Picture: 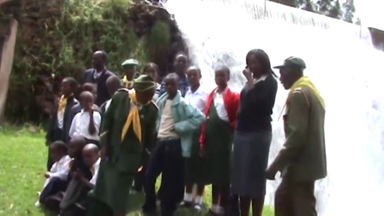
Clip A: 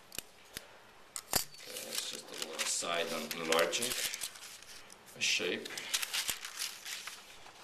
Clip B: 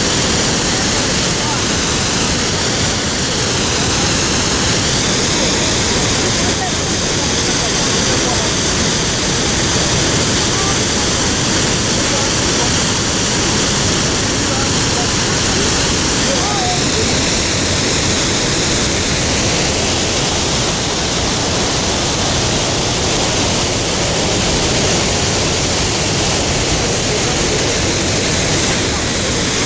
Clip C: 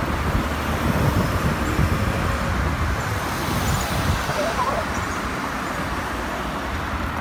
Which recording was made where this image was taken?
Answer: B